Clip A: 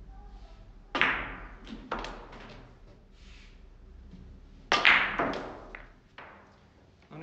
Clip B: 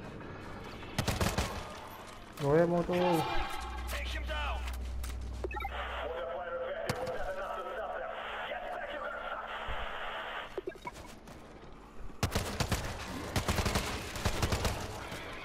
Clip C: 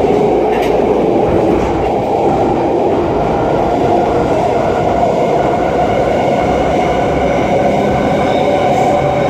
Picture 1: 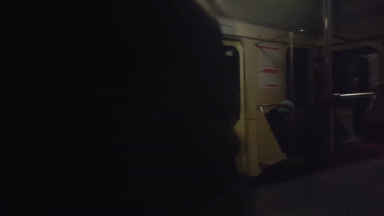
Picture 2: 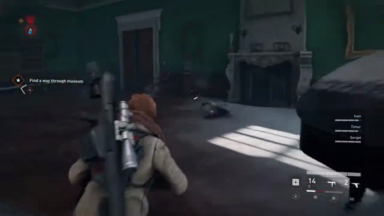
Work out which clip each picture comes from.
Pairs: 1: C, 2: B